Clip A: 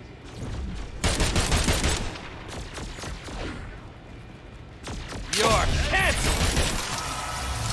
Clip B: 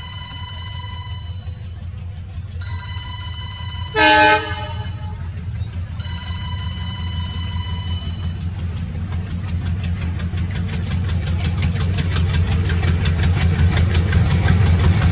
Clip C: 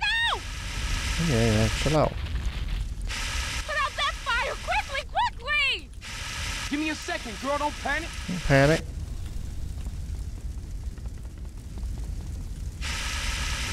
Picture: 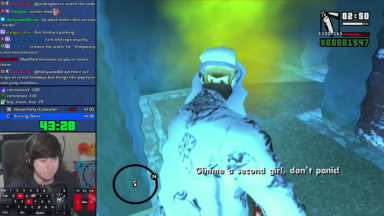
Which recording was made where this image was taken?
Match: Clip C